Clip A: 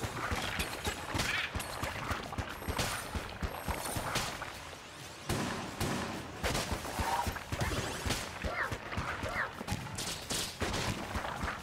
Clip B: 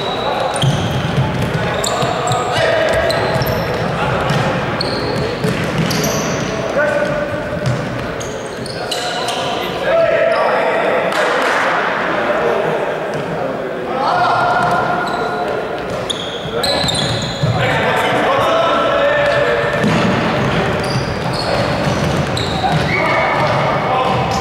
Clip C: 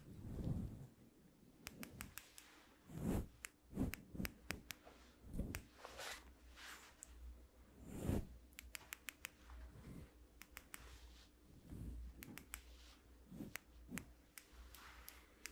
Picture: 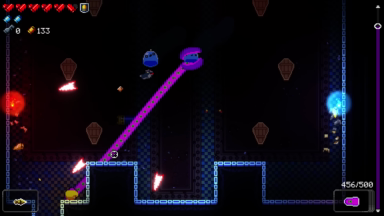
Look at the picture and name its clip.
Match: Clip A